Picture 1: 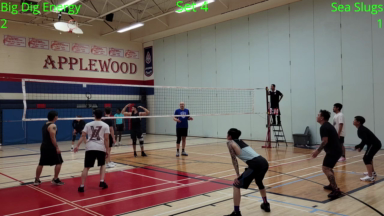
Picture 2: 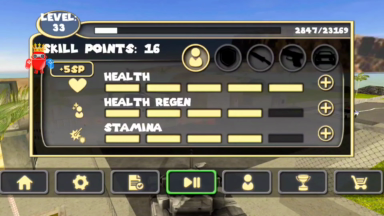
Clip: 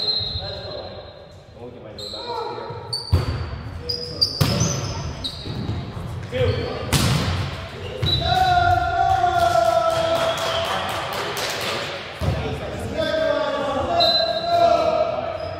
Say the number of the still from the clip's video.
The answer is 1